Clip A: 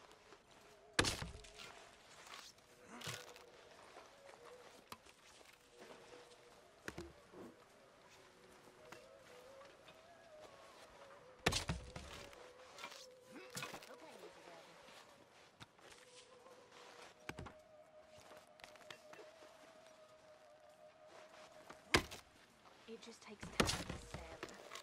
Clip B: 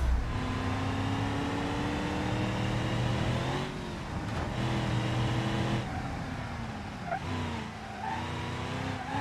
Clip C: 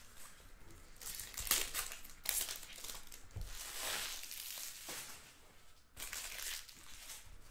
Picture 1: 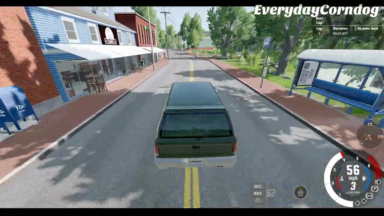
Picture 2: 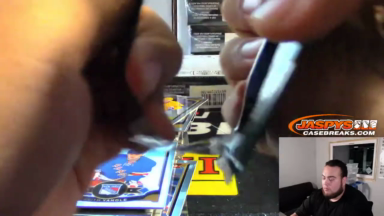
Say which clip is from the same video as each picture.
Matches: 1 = B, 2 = C